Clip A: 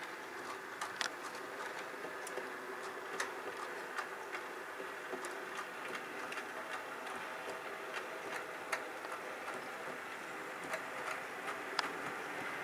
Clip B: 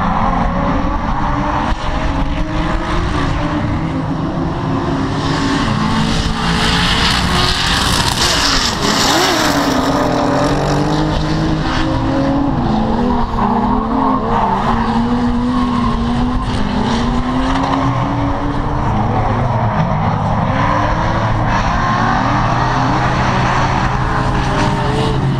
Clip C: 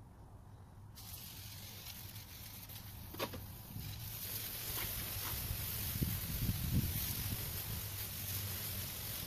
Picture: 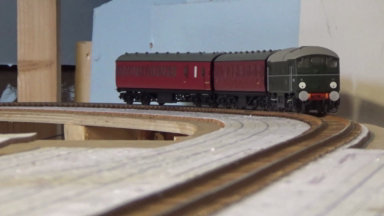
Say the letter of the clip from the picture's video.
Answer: A